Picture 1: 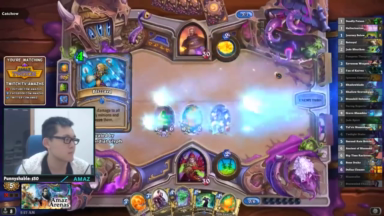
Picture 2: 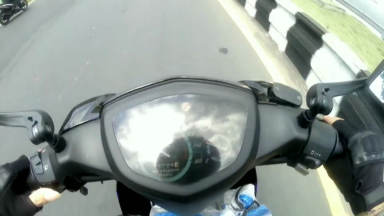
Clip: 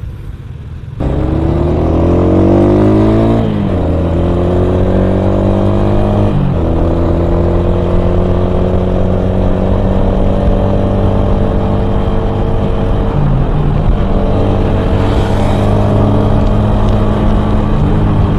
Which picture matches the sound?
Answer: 2